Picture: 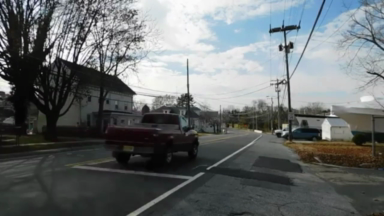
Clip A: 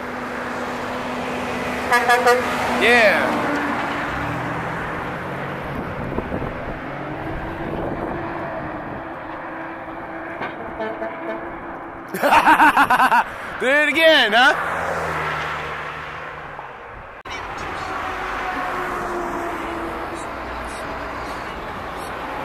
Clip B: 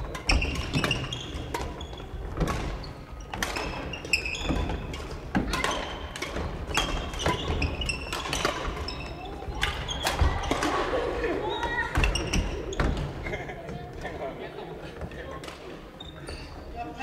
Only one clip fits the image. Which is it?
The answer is A